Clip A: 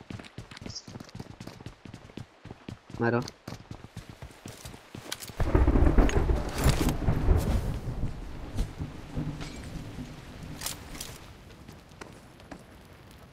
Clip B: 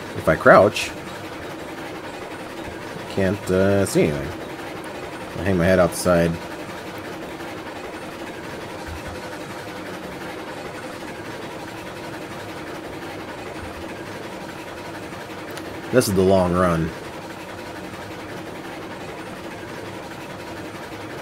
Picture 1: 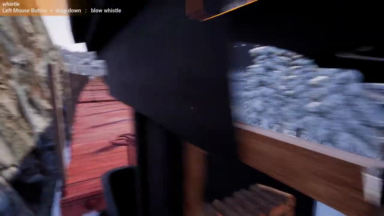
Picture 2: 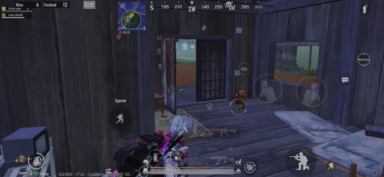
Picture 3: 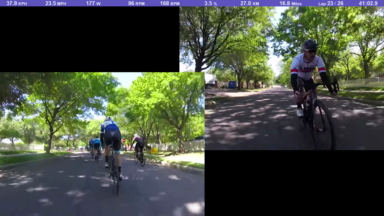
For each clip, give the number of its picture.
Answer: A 2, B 1